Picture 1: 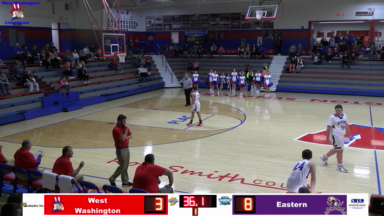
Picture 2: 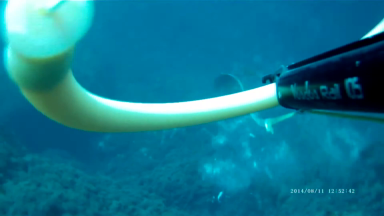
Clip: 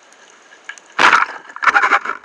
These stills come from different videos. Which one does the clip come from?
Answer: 2